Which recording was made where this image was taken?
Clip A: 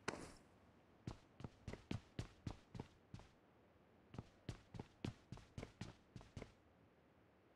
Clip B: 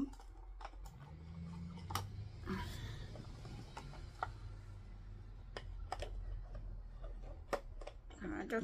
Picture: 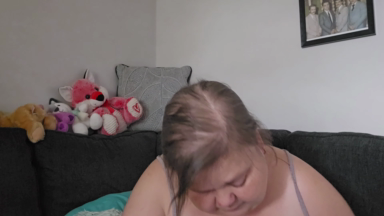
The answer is B